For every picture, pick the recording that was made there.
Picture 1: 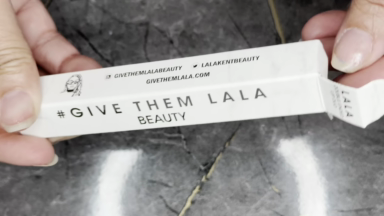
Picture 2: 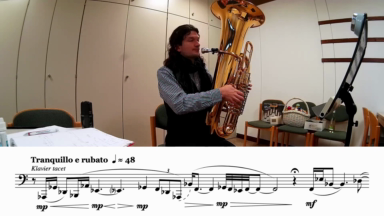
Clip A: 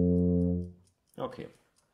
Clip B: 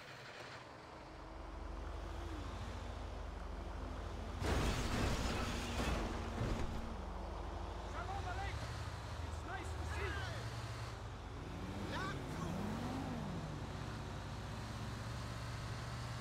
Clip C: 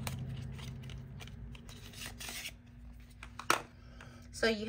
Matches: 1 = C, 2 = A